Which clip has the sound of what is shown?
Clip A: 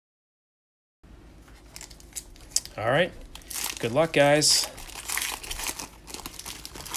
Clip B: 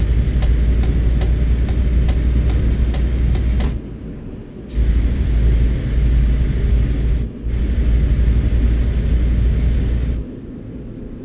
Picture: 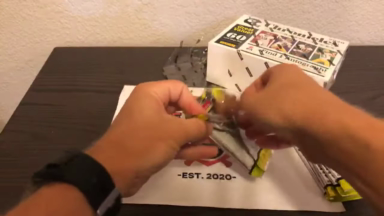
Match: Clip A